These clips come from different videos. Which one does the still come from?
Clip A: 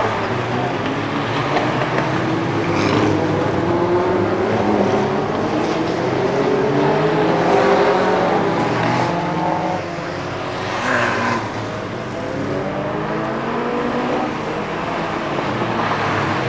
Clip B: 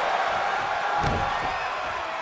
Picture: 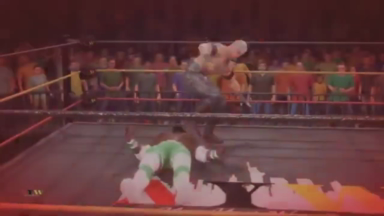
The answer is B